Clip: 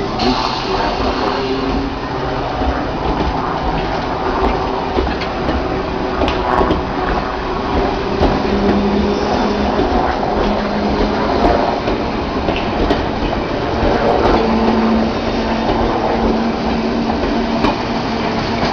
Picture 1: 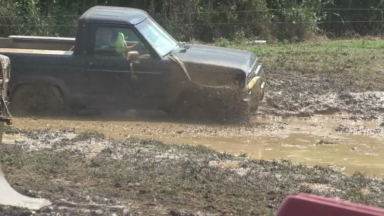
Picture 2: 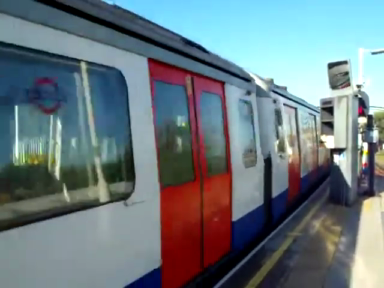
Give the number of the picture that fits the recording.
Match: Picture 2